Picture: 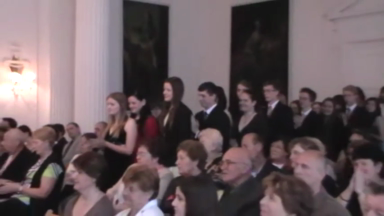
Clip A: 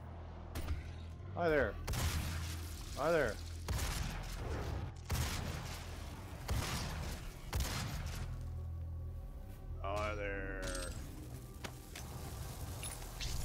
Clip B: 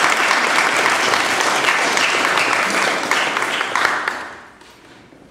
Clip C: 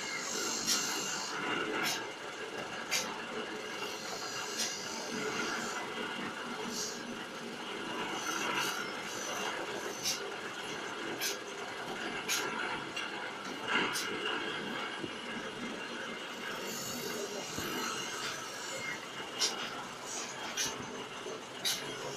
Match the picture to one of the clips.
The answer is B